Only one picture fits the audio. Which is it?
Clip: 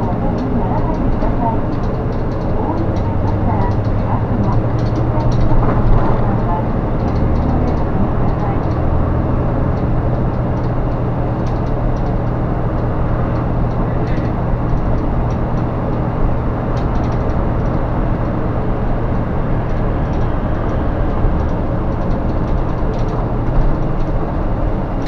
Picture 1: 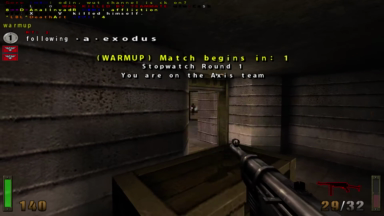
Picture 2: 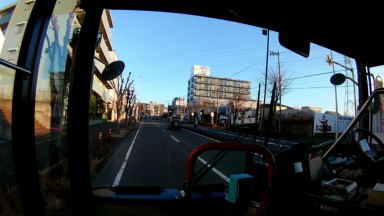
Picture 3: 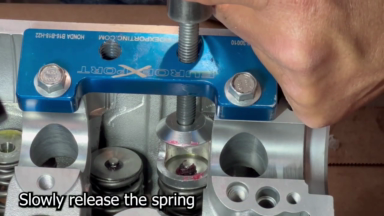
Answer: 2